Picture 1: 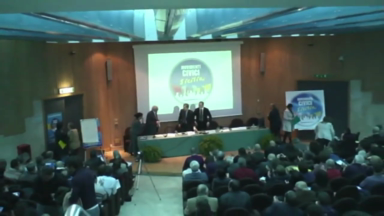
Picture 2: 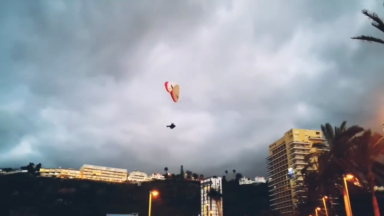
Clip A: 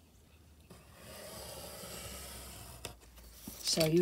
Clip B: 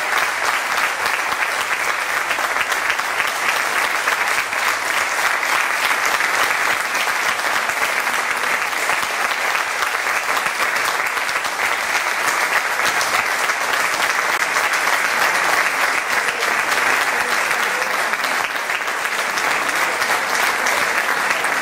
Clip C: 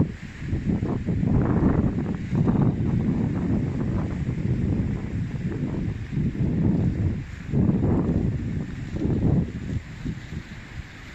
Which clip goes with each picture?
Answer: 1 B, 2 C